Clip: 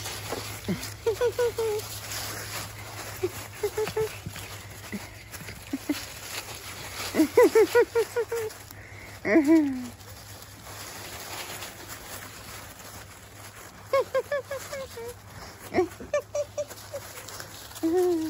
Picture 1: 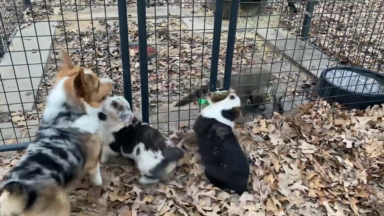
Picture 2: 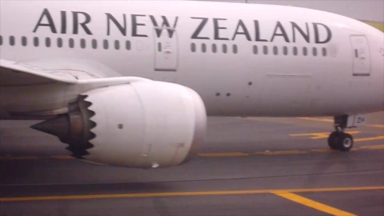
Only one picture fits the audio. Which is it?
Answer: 1